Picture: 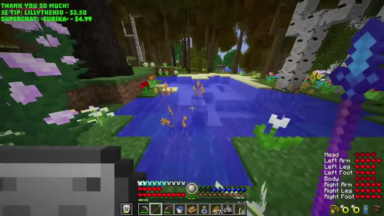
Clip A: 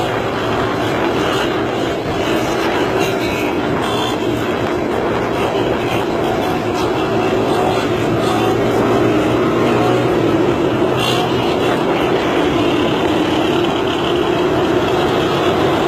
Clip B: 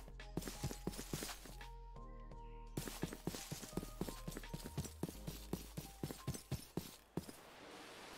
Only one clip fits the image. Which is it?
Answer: B